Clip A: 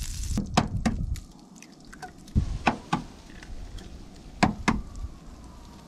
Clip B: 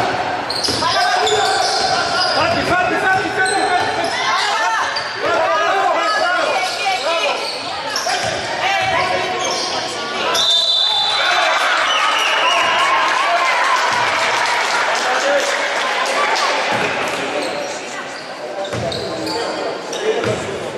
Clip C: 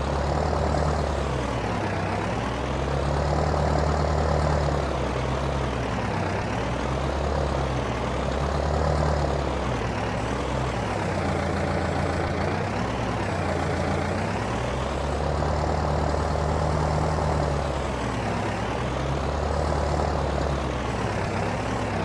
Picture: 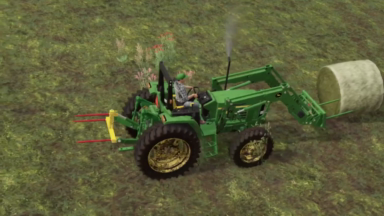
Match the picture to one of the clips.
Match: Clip C